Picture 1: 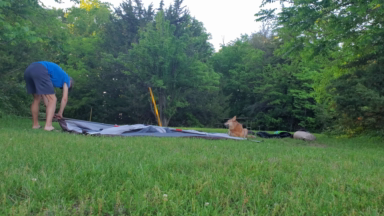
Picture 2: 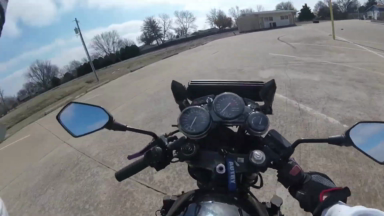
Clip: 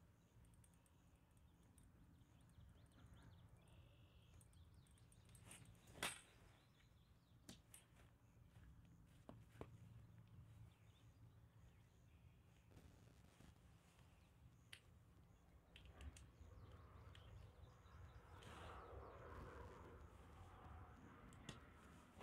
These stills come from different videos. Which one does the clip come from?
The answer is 1